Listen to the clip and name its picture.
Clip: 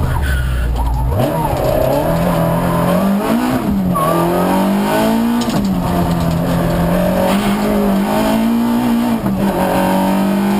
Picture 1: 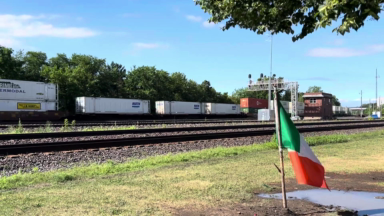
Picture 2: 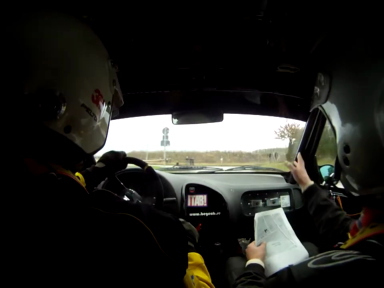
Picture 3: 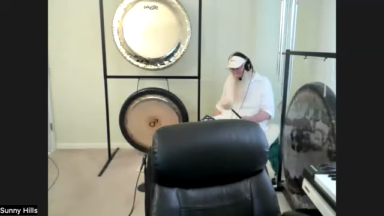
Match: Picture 2